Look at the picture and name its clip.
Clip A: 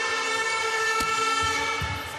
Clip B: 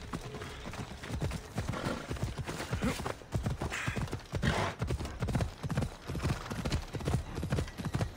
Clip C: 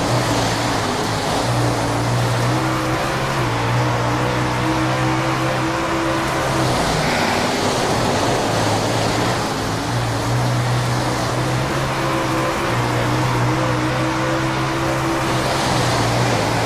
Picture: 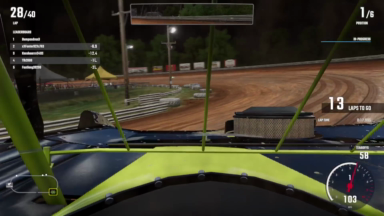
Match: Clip C